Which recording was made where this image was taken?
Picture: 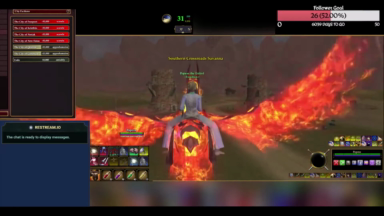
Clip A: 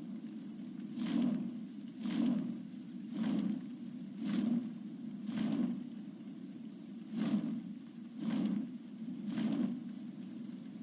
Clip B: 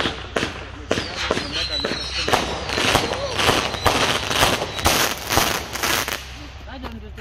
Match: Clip A